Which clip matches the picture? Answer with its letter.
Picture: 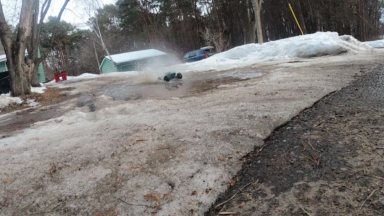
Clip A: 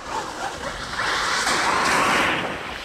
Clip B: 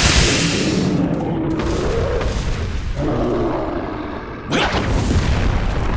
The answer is A